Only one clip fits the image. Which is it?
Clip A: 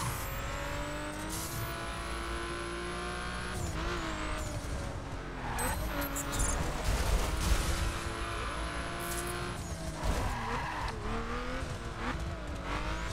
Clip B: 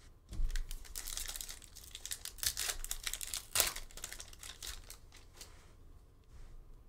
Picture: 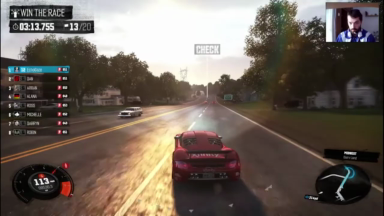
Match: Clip A